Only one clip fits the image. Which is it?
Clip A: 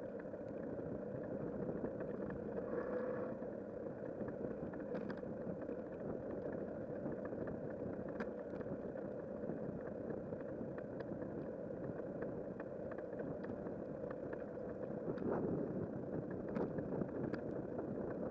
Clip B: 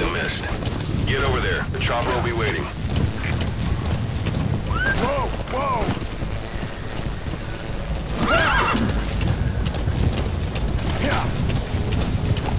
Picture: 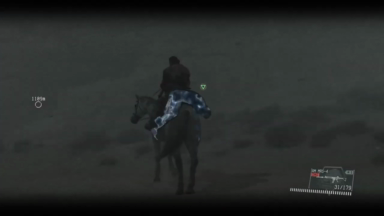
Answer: B